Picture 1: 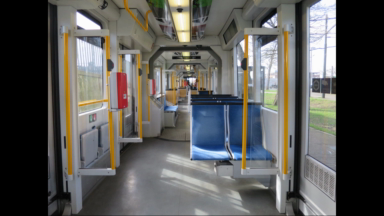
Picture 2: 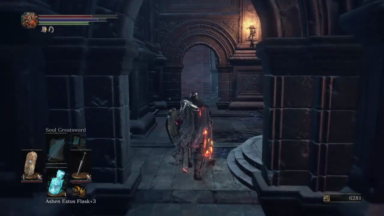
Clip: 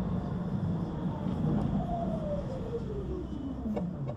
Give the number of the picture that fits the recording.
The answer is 1